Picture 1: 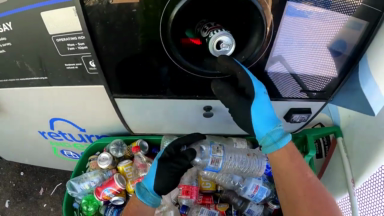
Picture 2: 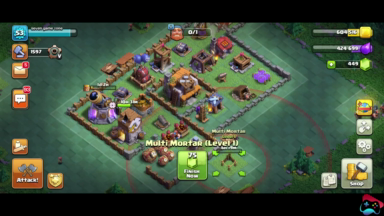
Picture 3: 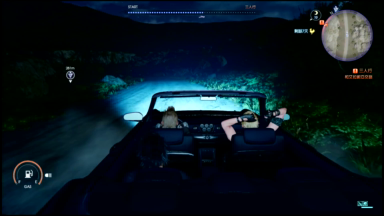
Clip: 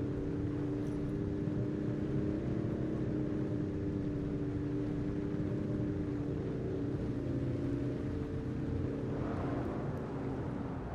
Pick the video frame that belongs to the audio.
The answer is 3